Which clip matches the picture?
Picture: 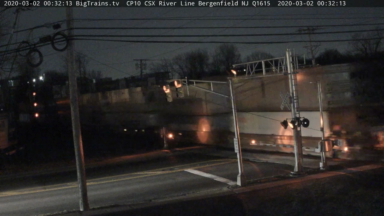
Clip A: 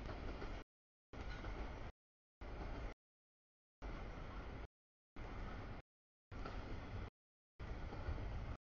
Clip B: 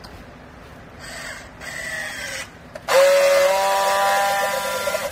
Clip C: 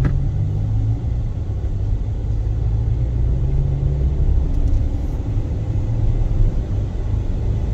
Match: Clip A